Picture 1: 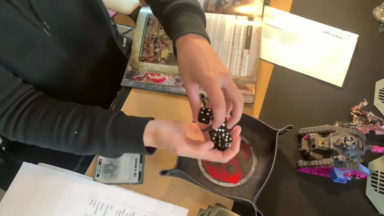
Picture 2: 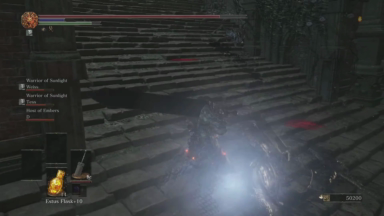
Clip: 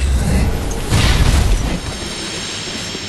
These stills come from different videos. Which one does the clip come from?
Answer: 2